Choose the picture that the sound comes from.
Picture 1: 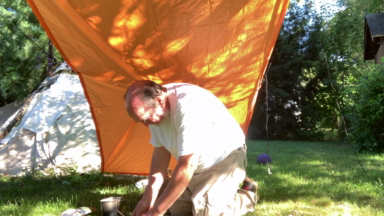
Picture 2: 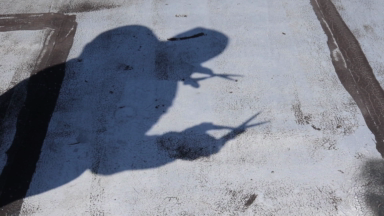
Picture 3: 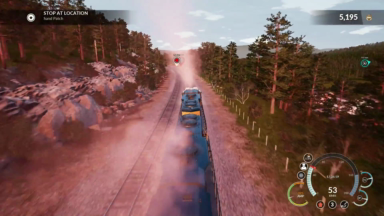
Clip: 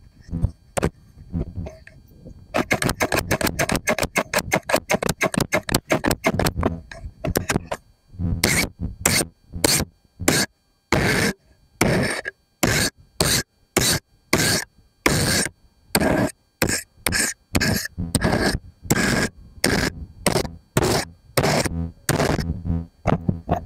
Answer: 2